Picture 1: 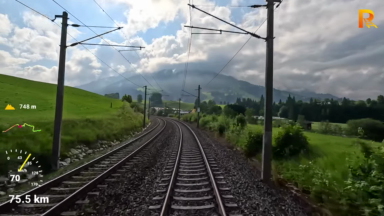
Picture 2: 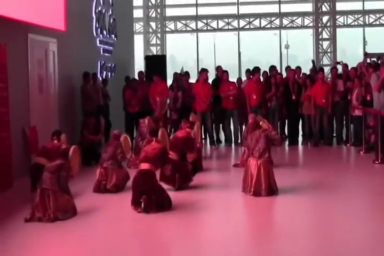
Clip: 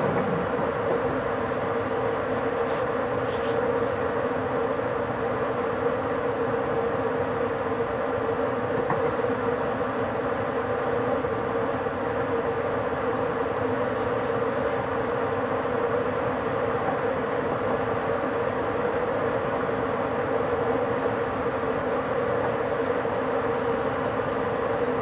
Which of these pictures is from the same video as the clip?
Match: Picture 1